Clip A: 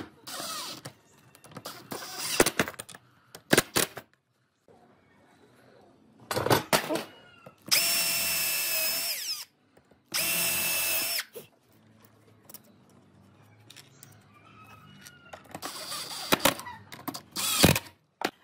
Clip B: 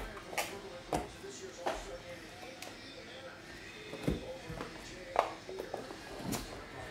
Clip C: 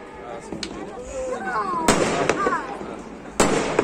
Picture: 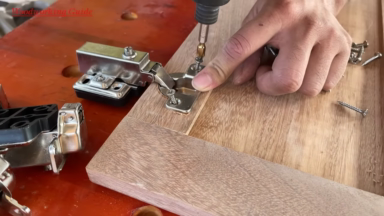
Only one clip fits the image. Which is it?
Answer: A